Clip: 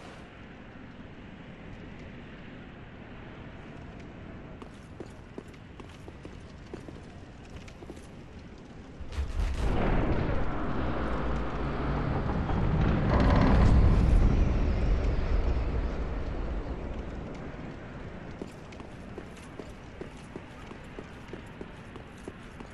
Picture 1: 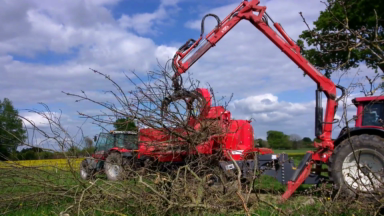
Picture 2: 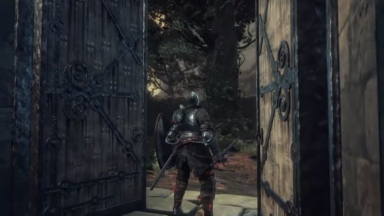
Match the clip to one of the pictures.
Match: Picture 2